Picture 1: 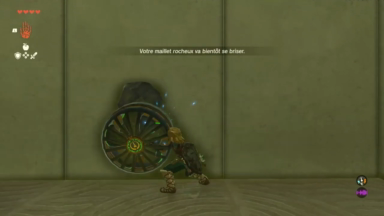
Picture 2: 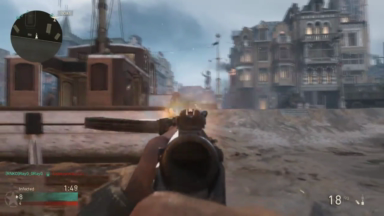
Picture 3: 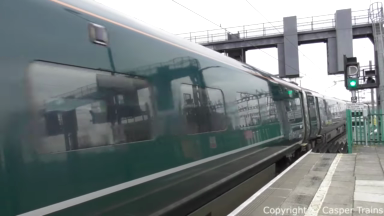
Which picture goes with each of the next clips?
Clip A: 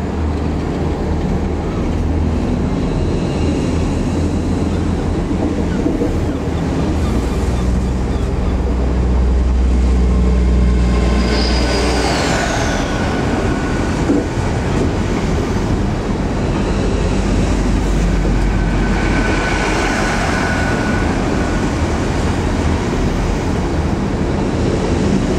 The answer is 3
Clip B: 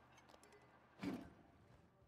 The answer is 1